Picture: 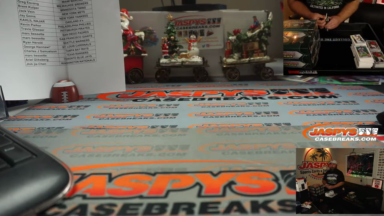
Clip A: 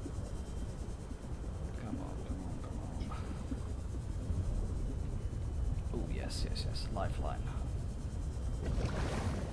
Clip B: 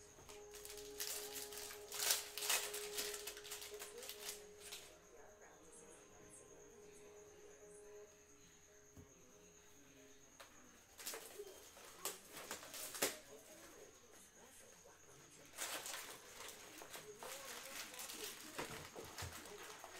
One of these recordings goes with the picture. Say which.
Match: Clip B